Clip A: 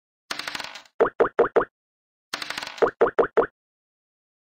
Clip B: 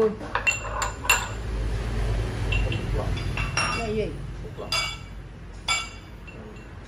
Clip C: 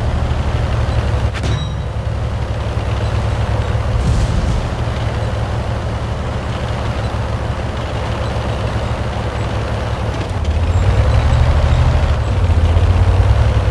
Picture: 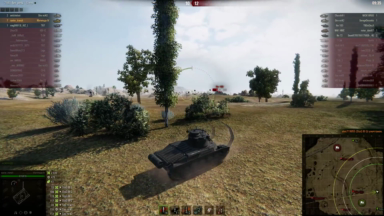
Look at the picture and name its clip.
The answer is C